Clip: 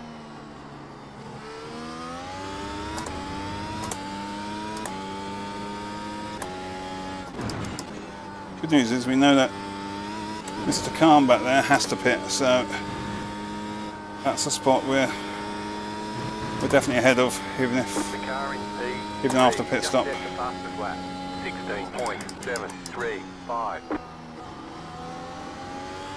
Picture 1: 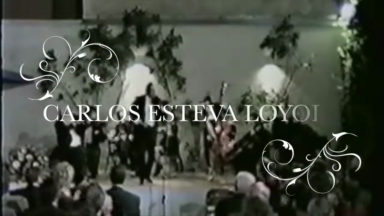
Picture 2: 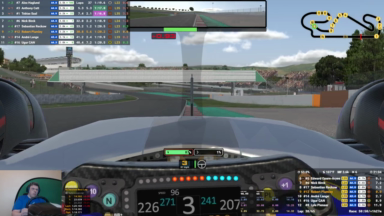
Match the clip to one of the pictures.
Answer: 2